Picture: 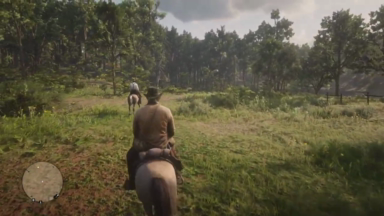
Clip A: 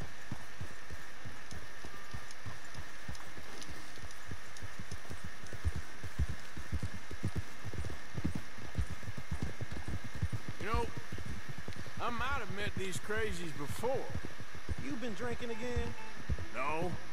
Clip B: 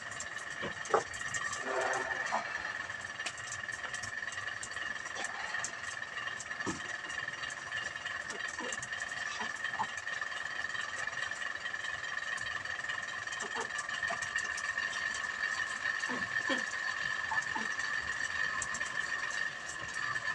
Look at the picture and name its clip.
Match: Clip A